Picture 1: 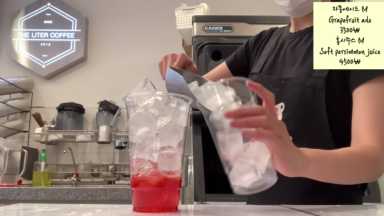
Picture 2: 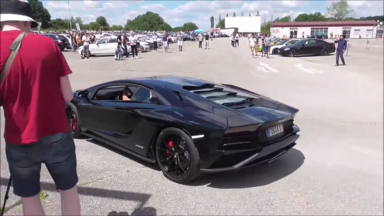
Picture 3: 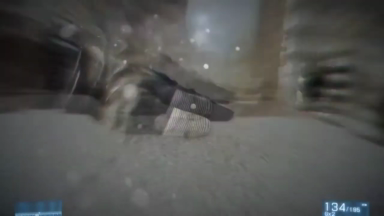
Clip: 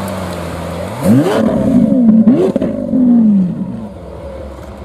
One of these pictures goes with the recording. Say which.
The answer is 2